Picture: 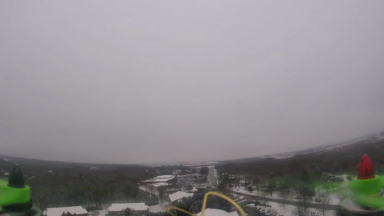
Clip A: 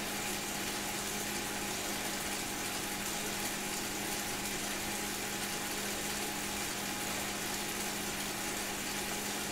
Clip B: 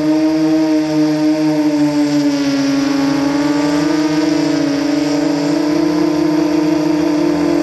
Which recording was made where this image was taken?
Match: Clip B